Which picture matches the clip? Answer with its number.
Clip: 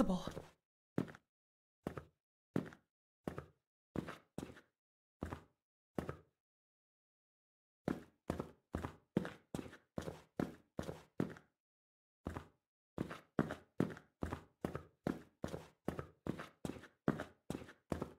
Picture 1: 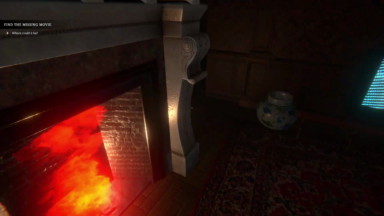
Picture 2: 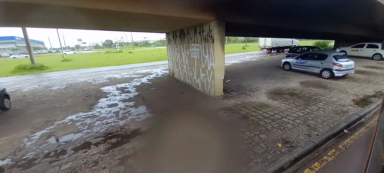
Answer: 1